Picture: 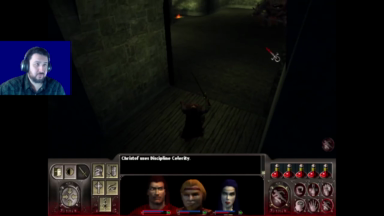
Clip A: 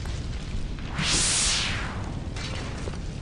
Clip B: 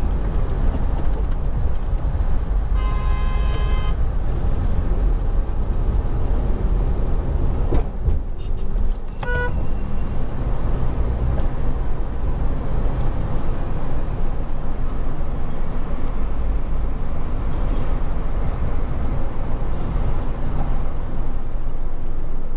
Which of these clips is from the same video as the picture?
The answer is A